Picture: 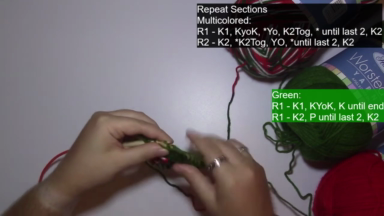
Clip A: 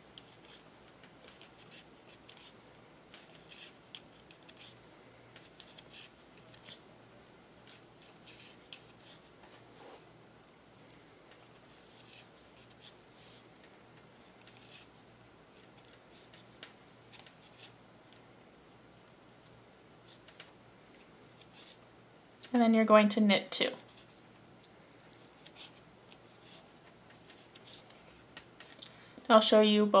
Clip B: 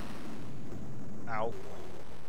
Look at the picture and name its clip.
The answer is A